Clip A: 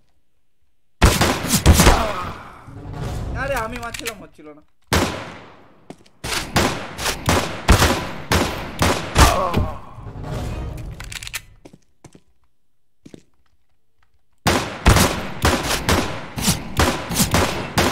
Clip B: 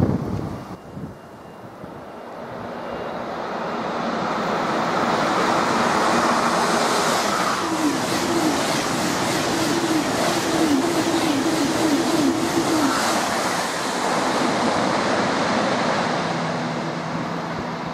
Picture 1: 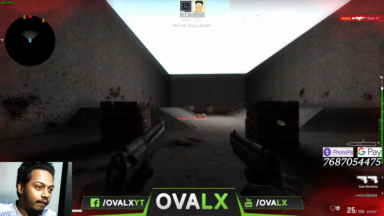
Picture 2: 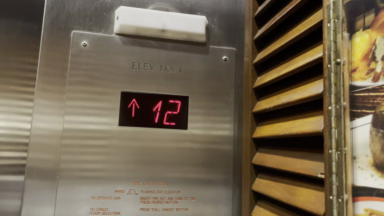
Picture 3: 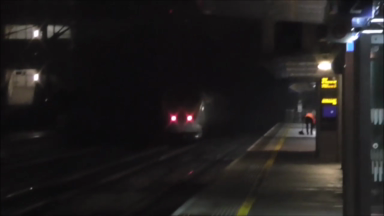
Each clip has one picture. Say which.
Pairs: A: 1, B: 3